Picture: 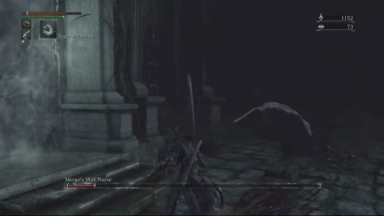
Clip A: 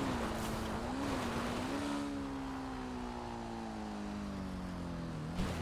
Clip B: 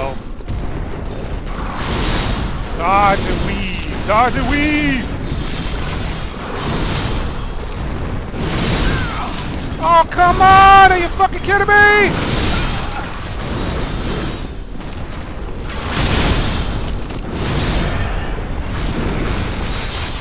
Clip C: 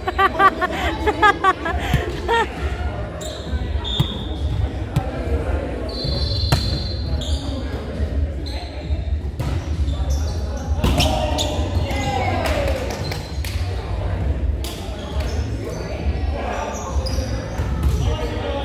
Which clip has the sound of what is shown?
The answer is B